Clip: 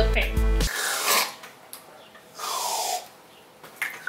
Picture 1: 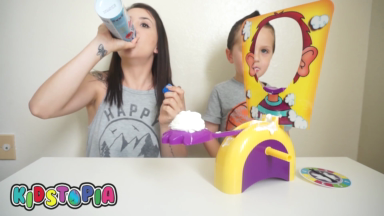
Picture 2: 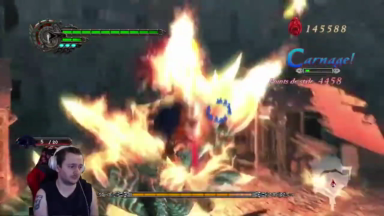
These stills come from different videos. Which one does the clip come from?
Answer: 1